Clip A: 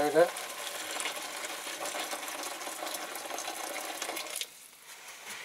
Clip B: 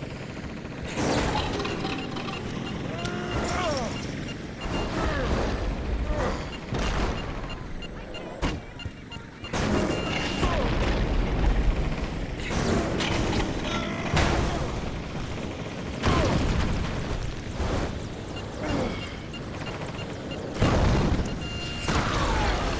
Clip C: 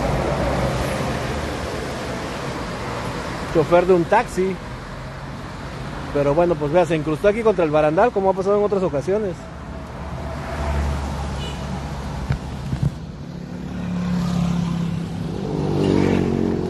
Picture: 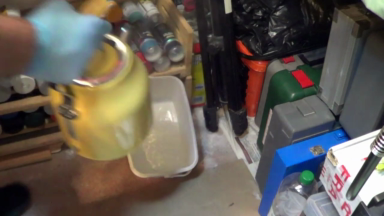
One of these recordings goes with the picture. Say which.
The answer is A